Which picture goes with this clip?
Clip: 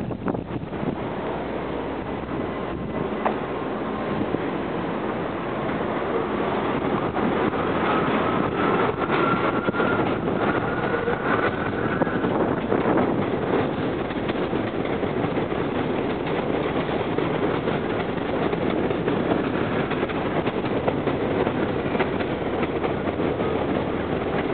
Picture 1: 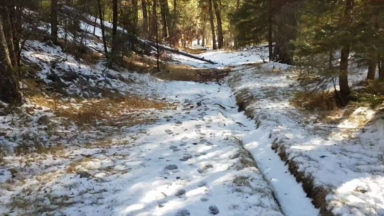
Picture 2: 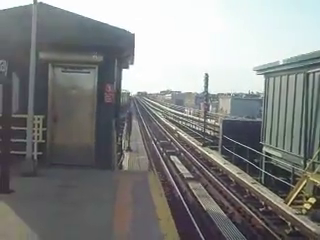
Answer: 2